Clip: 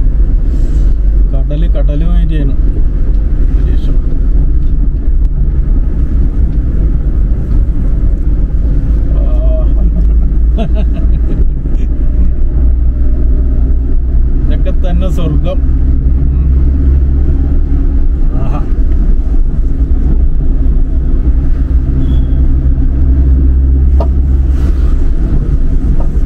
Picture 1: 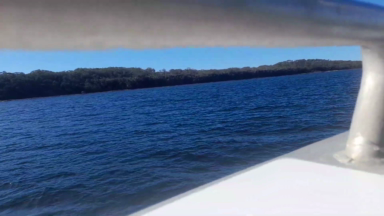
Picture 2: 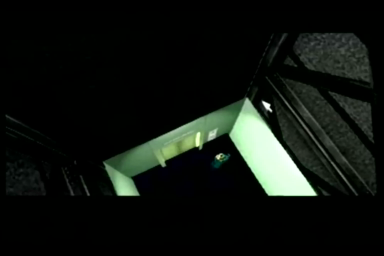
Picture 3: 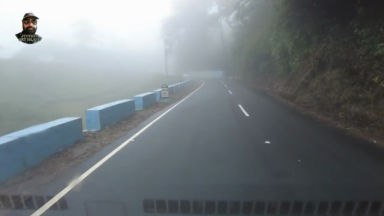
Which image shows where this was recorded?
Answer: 3